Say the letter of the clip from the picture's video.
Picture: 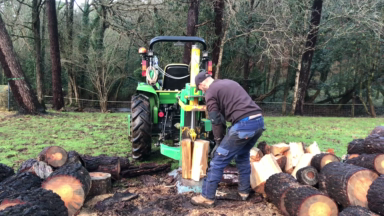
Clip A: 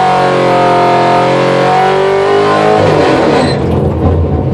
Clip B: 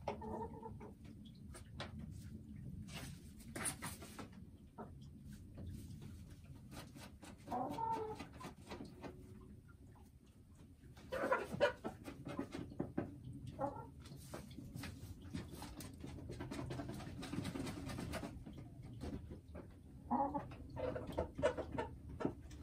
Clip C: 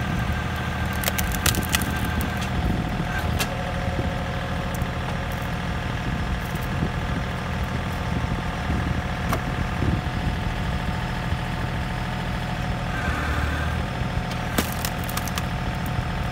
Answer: C